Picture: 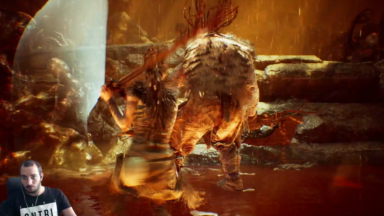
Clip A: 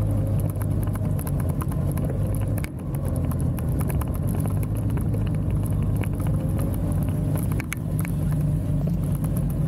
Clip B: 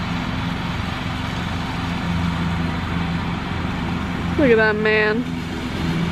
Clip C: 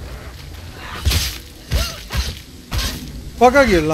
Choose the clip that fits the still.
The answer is C